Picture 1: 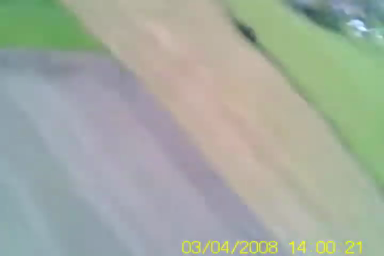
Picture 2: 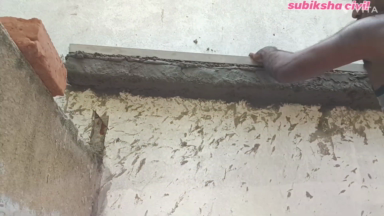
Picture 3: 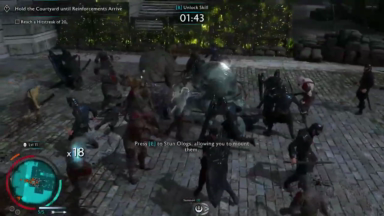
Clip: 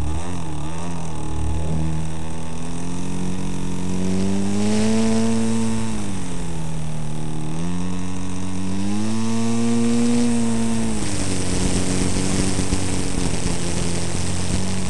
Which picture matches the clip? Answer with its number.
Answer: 1